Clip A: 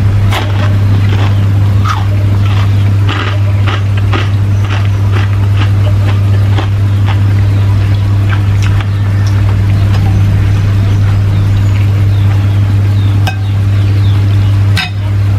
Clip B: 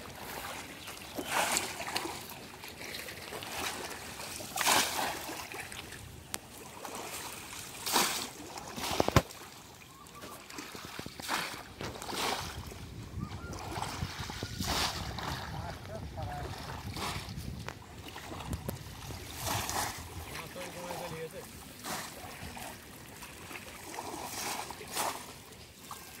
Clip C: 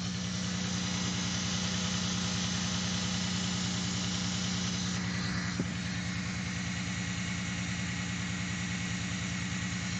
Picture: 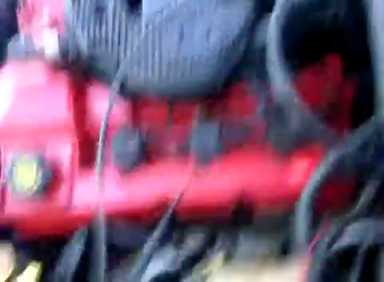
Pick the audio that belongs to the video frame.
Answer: C